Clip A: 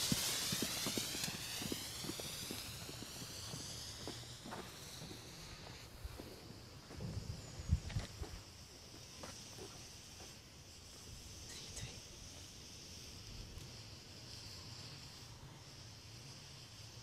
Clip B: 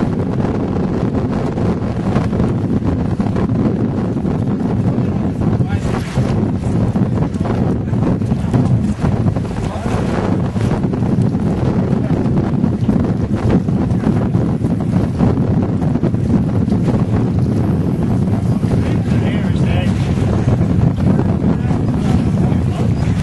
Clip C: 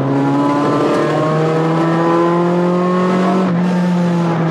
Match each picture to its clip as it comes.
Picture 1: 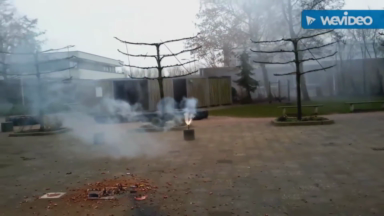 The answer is A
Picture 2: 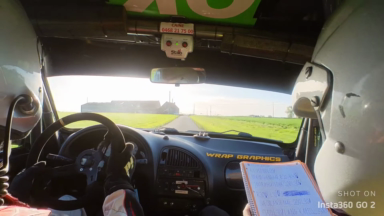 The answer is C